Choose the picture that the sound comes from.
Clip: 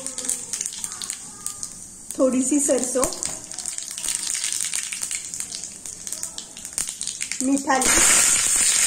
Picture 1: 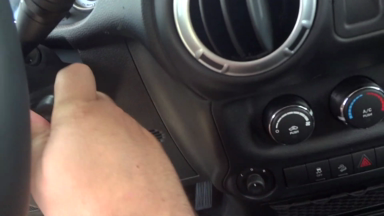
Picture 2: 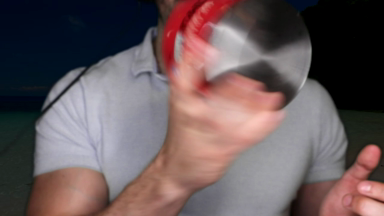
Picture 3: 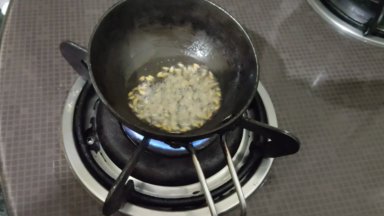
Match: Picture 3